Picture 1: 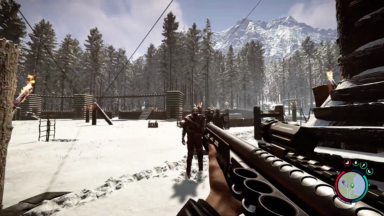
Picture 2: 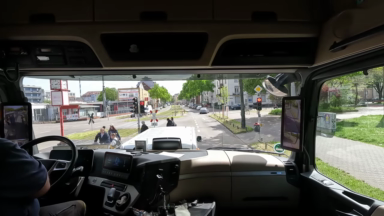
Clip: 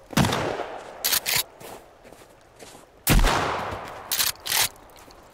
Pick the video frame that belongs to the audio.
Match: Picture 1